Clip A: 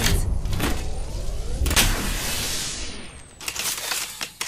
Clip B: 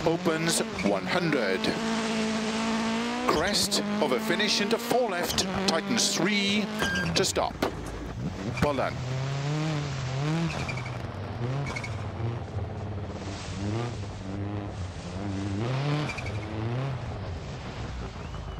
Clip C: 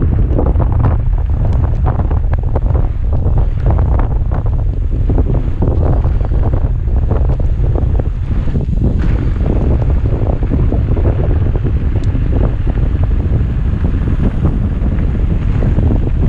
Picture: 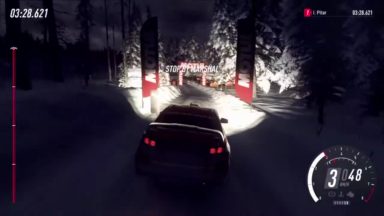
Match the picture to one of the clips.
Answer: B